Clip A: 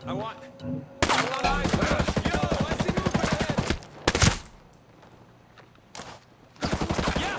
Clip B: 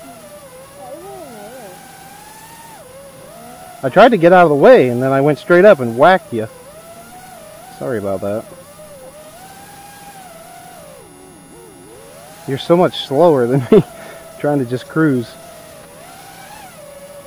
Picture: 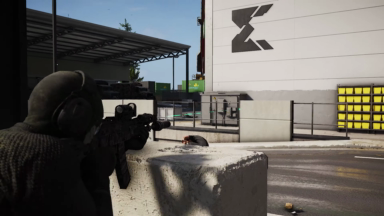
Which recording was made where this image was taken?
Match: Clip A